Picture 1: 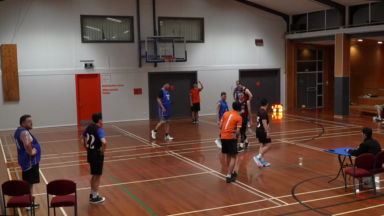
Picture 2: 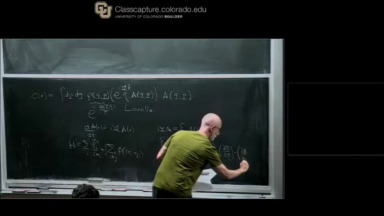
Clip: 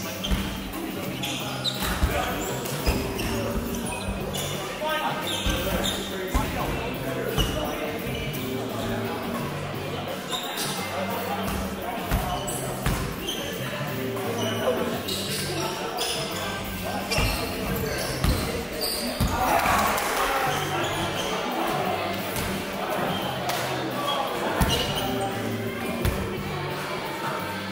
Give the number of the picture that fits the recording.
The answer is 1